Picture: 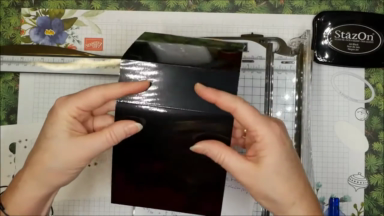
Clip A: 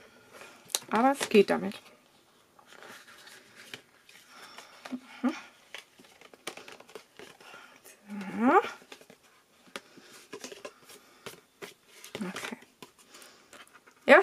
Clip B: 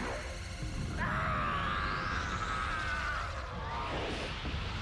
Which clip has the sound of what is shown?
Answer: A